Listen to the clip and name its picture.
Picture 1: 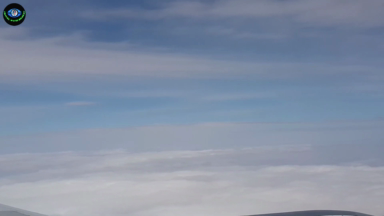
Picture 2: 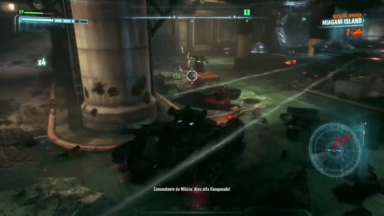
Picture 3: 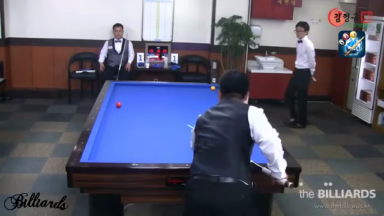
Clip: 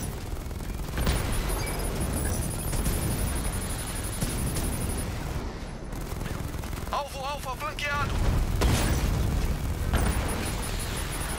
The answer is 2